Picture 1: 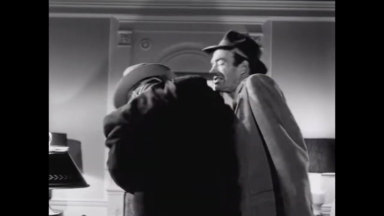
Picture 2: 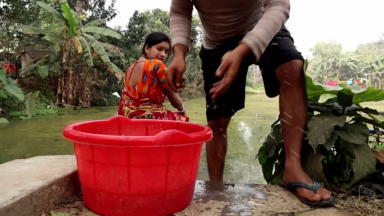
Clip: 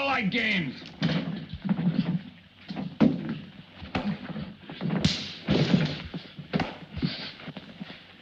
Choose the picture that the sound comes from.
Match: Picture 1